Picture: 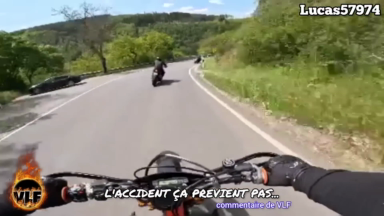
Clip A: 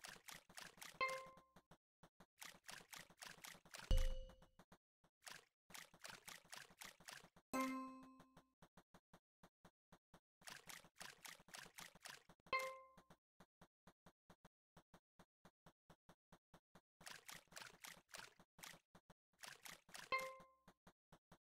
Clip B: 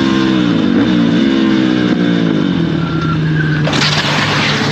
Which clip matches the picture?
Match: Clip B